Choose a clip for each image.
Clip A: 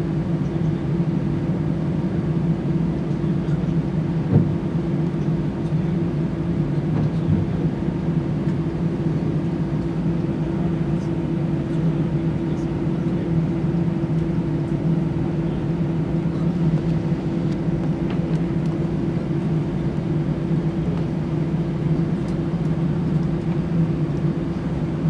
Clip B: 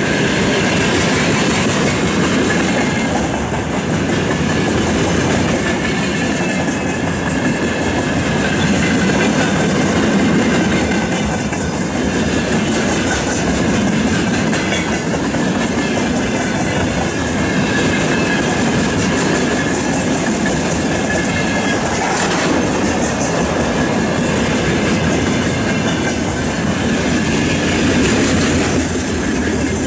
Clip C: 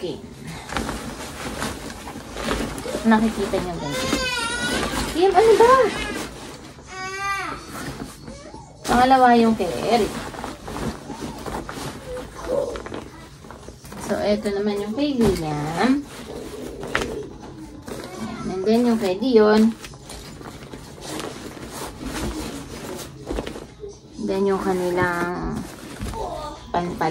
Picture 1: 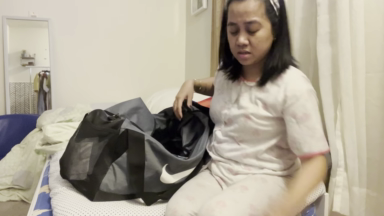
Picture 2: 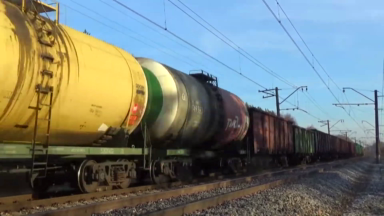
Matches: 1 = C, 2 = B